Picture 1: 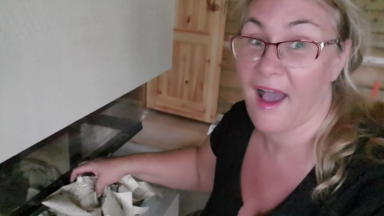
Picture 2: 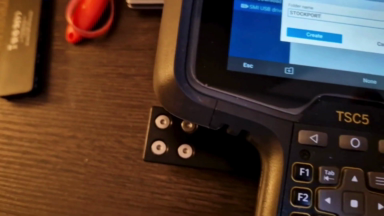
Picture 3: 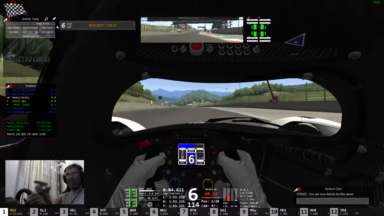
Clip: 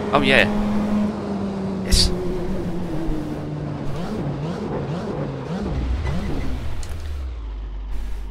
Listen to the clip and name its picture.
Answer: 3